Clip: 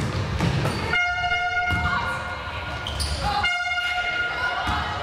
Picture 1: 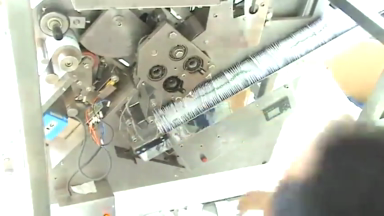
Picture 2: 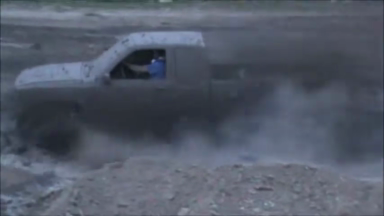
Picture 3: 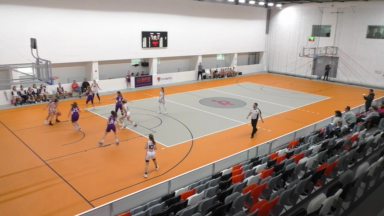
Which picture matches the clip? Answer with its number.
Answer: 3